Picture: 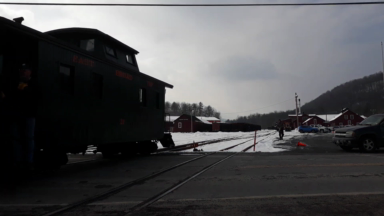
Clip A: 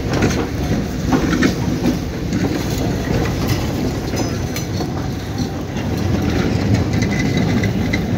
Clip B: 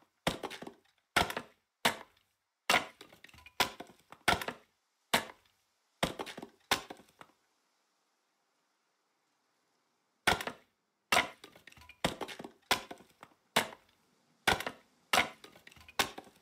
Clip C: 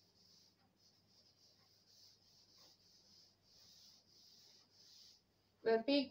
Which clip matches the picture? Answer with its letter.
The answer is A